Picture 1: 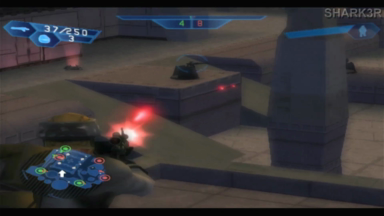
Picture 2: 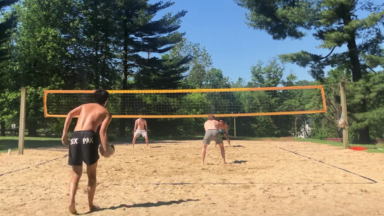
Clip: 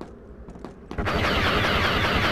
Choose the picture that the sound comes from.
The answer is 1